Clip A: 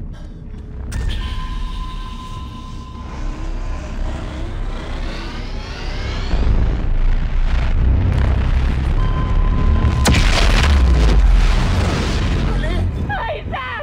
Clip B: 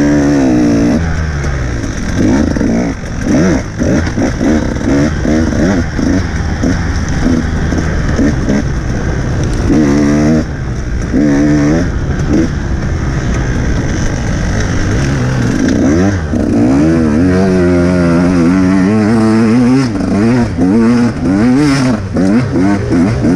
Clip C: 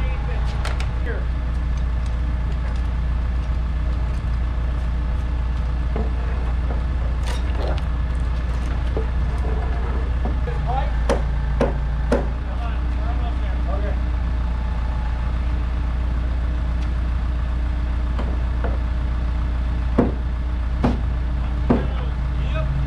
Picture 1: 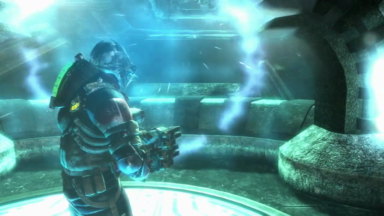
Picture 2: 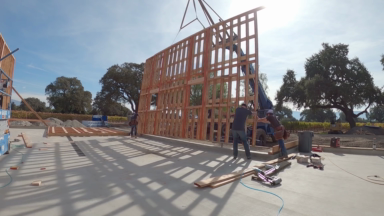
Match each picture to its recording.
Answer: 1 A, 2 C